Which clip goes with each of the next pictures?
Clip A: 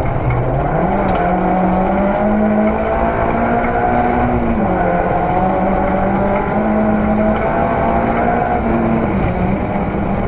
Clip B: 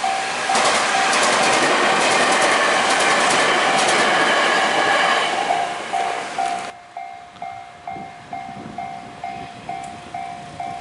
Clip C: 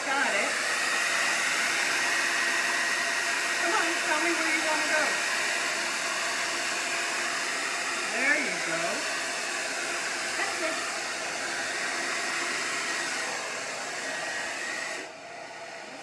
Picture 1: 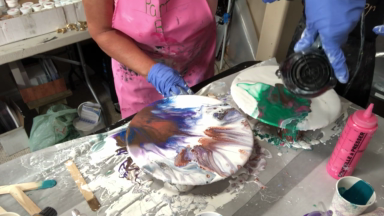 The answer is C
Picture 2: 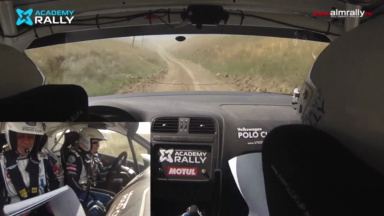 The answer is A